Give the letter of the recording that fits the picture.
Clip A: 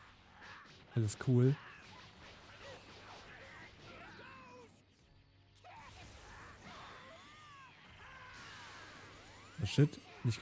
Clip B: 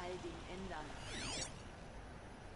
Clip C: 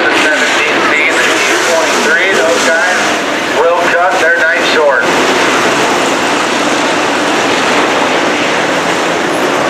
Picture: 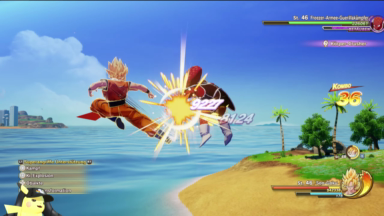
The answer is A